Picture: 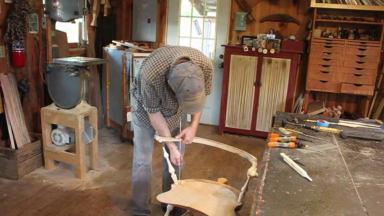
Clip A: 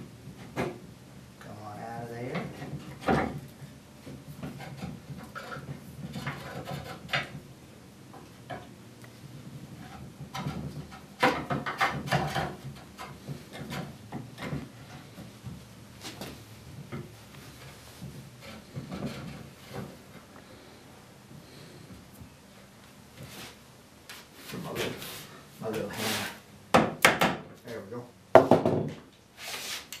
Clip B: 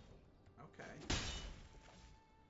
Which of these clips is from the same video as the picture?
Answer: A